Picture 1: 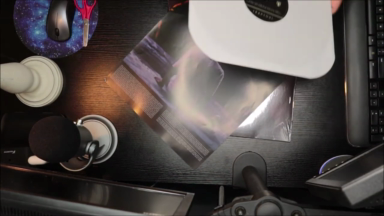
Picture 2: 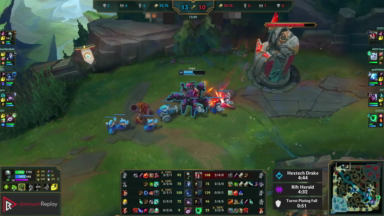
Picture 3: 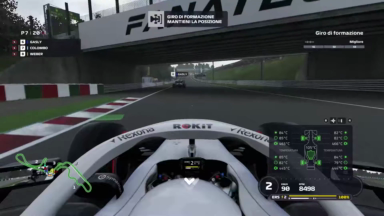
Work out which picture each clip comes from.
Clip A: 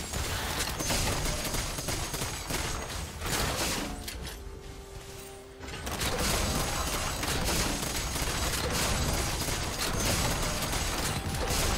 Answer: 2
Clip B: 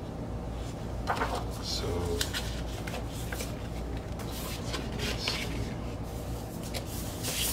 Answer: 1